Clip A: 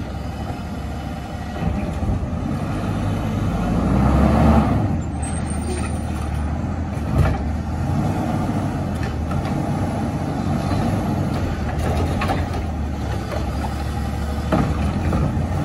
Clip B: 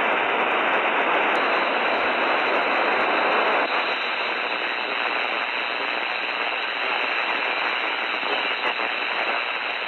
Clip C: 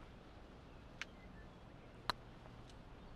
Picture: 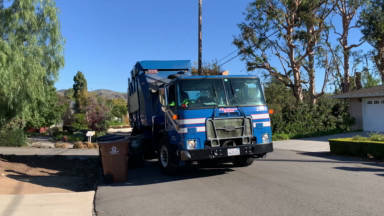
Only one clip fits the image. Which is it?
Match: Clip A